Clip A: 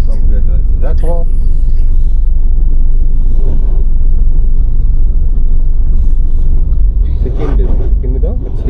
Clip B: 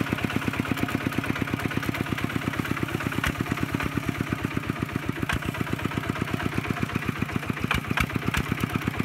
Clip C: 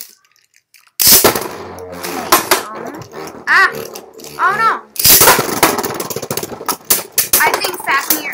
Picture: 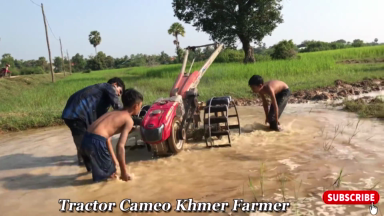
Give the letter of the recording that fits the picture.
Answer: B